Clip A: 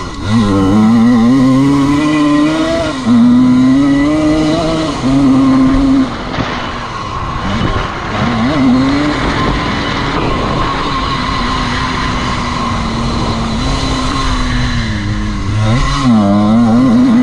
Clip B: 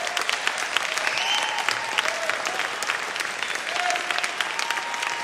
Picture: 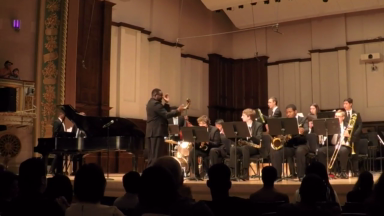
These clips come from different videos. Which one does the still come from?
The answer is B